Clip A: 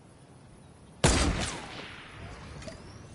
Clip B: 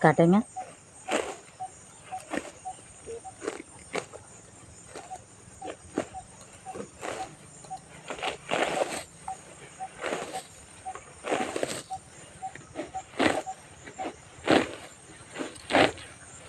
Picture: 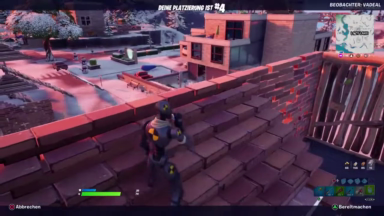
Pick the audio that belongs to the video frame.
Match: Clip A